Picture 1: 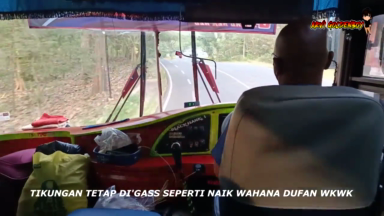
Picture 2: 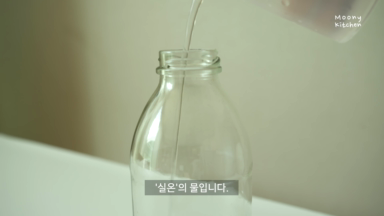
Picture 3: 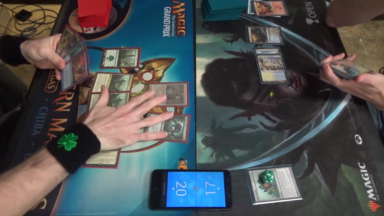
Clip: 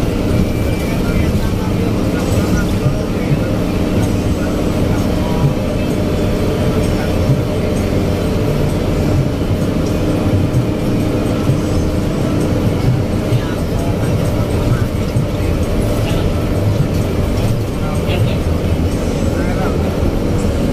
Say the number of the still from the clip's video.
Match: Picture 1